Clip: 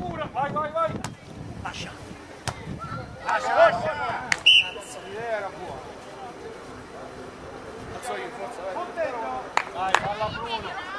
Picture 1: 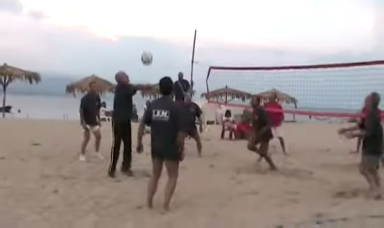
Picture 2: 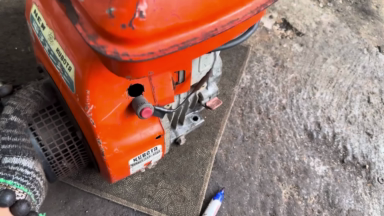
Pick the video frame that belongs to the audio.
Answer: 1